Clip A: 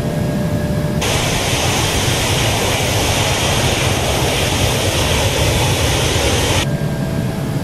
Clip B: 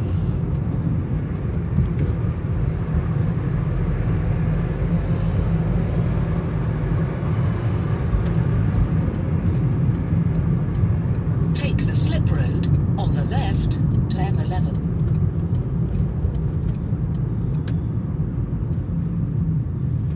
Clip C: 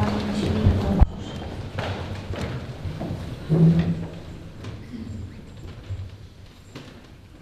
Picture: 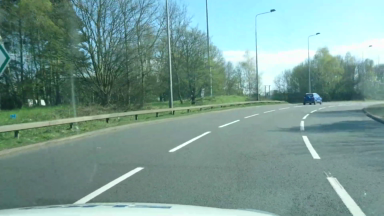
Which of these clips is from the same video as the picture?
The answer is B